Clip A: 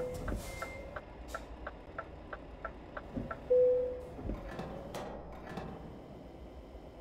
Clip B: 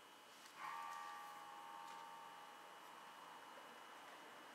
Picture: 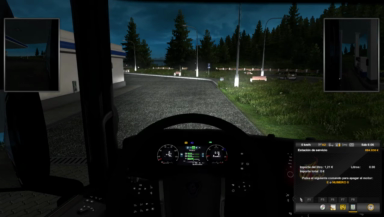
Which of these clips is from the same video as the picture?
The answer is A